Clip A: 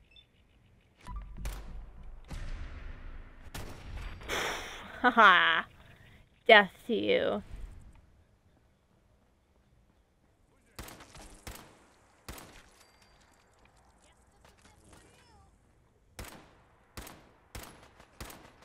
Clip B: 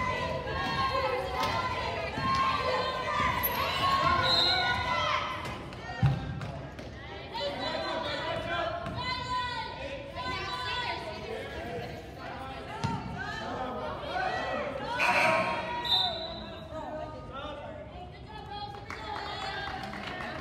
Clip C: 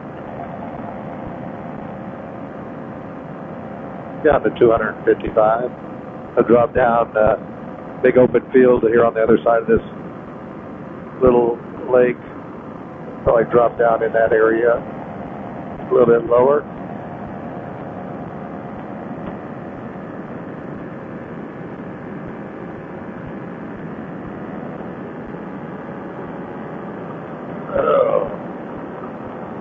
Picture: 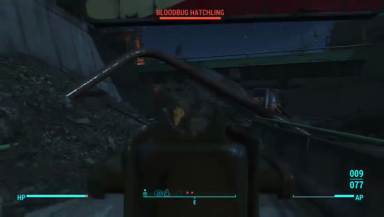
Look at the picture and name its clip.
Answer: A